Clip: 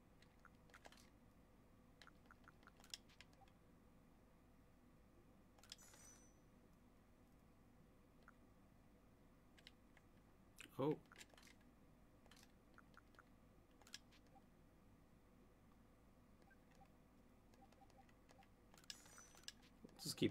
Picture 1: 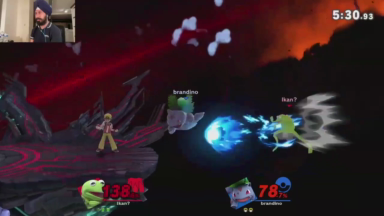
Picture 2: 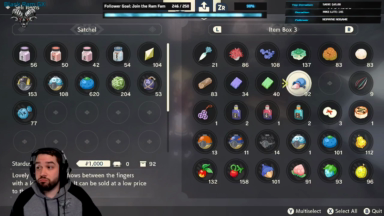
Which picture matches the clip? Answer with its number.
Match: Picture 2